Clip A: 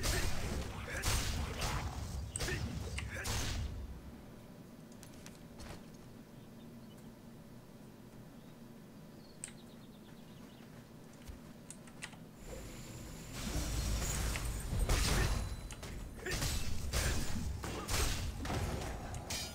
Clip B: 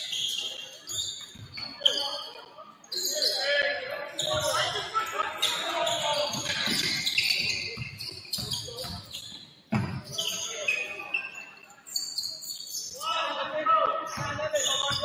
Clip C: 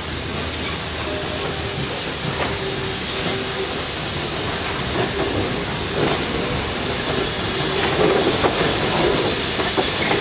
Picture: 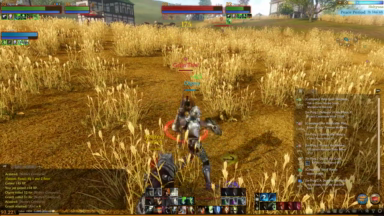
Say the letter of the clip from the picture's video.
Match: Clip A